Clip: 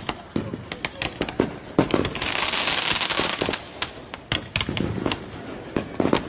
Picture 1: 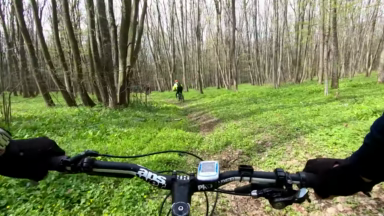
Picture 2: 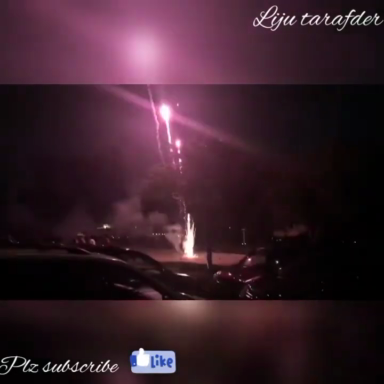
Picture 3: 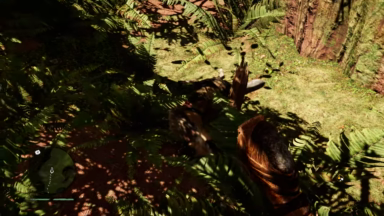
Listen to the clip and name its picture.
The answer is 2